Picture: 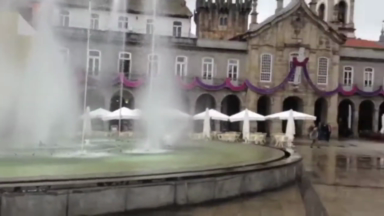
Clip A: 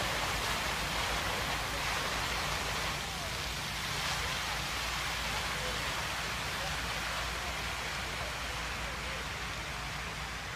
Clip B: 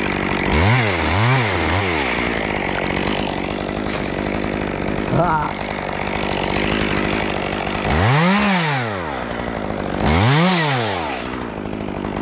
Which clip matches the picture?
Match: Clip A